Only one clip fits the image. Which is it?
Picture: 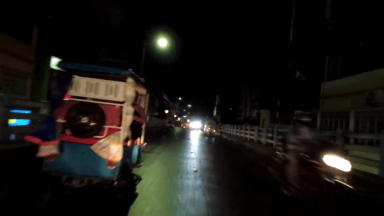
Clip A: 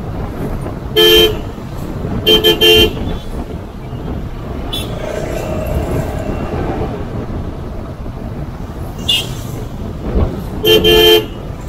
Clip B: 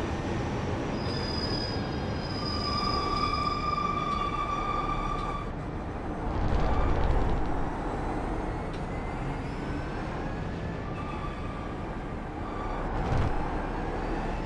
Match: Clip A